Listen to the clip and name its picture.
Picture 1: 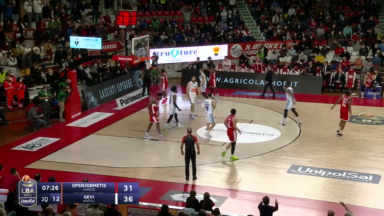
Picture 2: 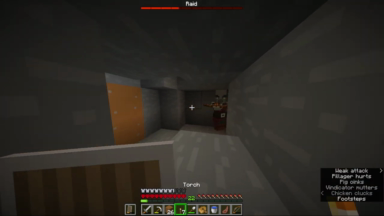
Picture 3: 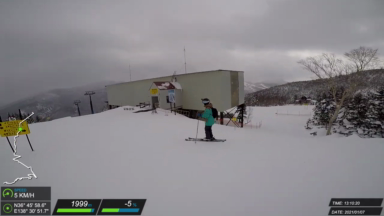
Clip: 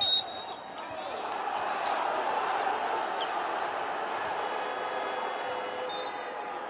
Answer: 1